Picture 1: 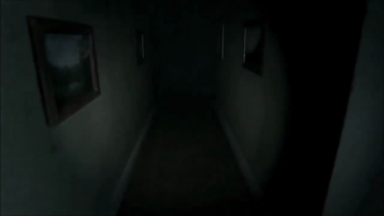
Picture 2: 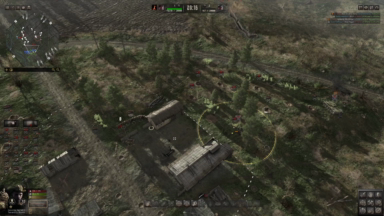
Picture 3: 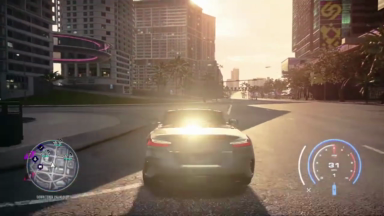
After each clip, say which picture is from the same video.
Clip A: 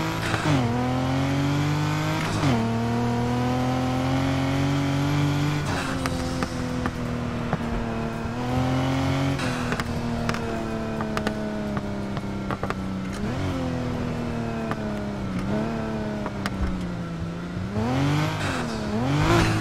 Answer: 3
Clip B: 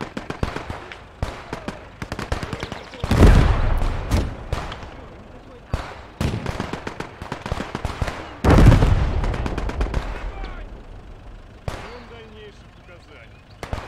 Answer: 2